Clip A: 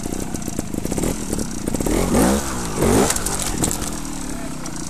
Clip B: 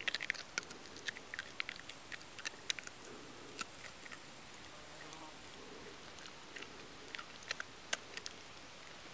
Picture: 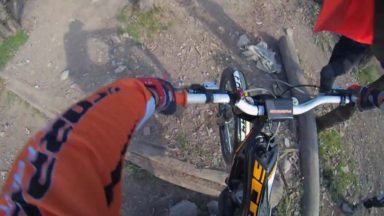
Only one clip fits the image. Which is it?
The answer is A